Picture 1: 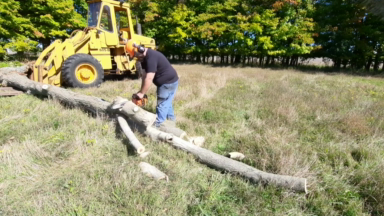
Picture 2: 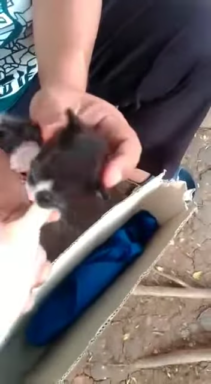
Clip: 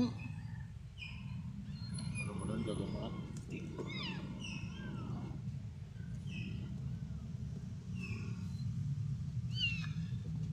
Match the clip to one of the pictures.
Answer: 2